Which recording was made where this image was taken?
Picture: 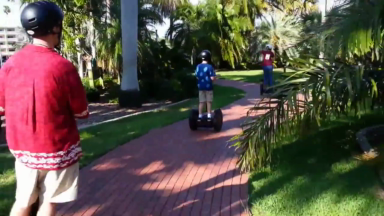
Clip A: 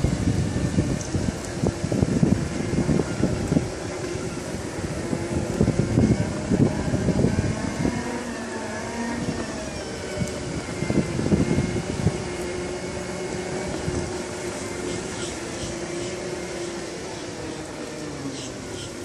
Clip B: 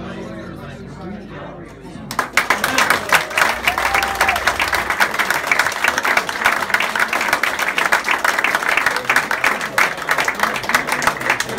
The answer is A